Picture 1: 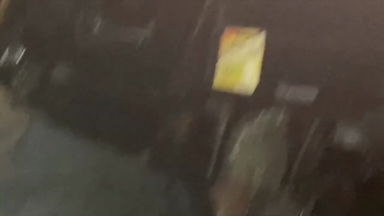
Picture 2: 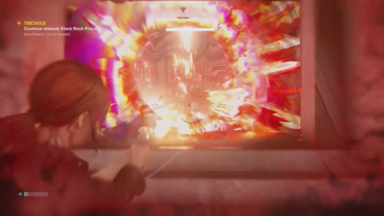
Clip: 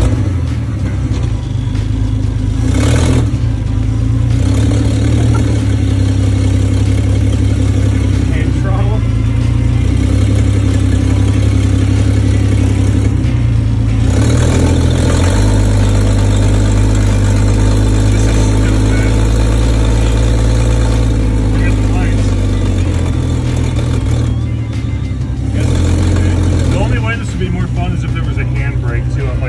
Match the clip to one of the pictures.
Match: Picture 1